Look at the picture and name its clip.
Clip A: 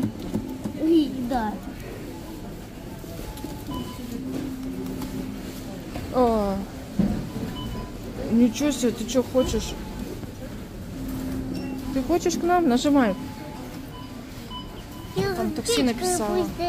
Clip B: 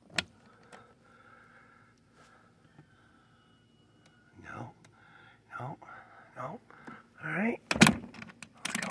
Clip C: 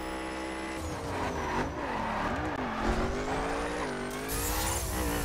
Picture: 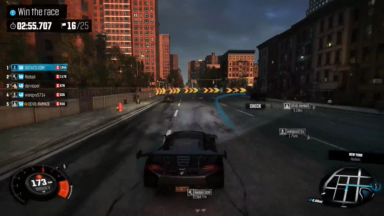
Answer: C